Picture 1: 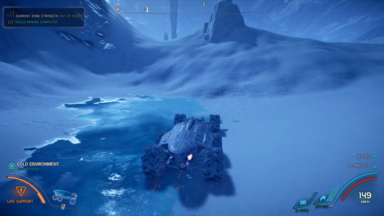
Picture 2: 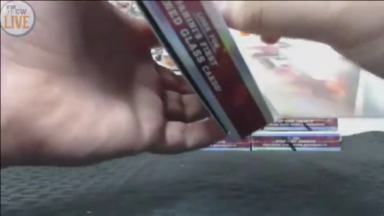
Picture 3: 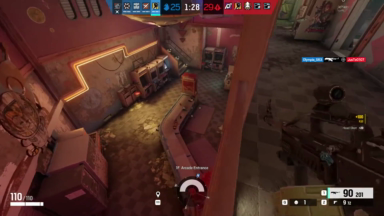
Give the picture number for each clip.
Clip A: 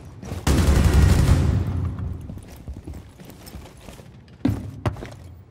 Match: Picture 3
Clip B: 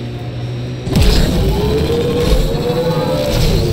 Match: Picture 1